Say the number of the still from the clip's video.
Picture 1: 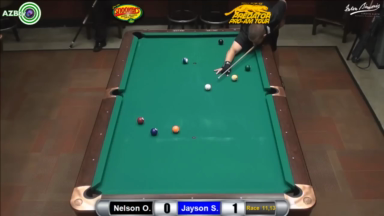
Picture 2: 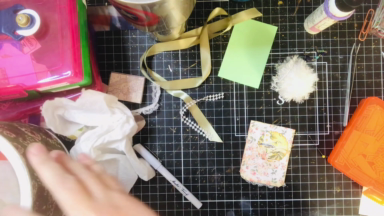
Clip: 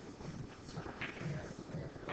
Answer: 1